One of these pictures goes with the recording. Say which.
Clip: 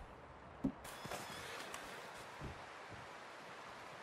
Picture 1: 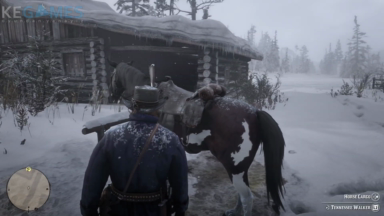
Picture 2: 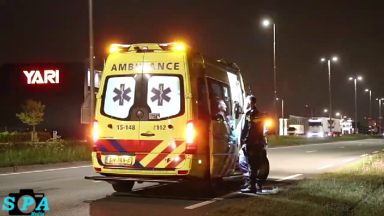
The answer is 1